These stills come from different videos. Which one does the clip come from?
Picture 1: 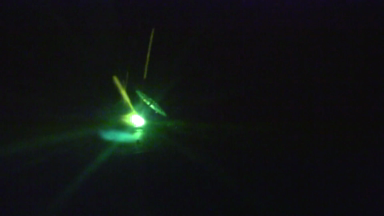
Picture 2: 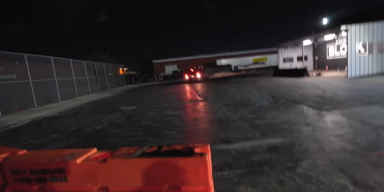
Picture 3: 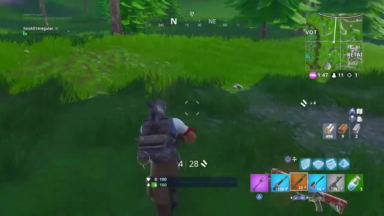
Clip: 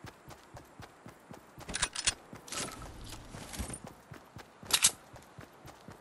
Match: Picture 3